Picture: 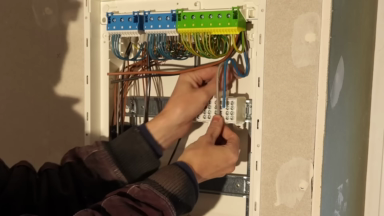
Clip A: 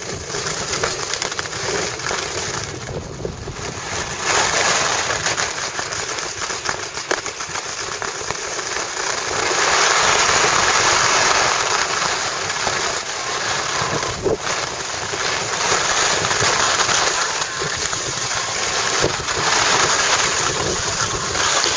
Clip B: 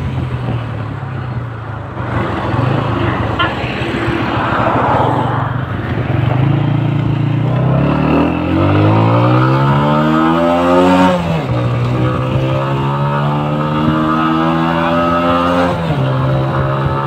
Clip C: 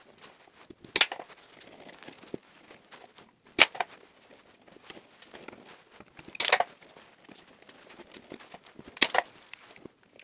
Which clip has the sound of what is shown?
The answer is C